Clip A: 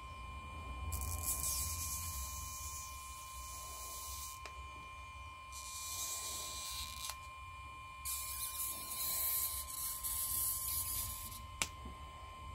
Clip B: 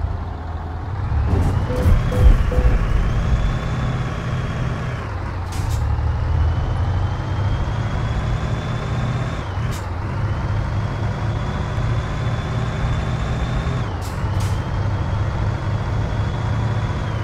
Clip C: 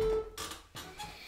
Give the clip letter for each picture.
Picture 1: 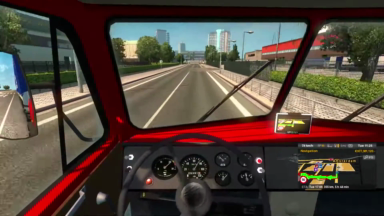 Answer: B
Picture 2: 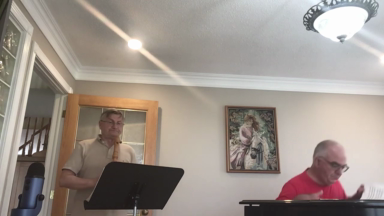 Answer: C